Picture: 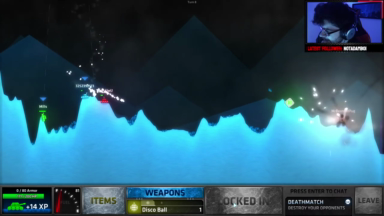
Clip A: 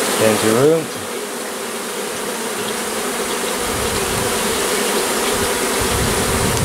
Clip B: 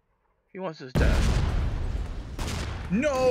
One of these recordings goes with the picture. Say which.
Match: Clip B